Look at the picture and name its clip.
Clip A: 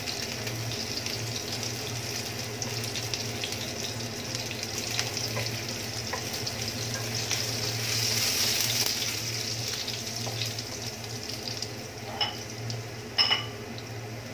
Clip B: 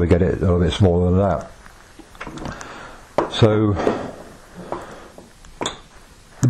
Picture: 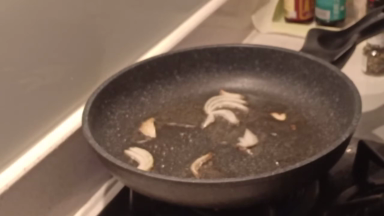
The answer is A